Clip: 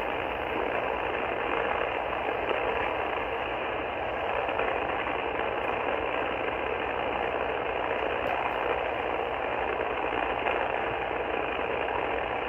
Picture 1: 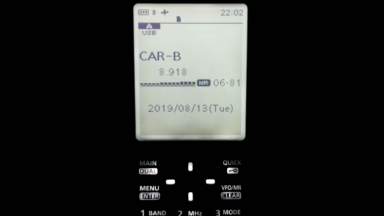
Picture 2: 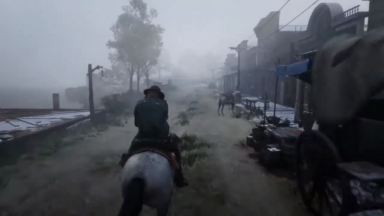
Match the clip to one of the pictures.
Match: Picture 1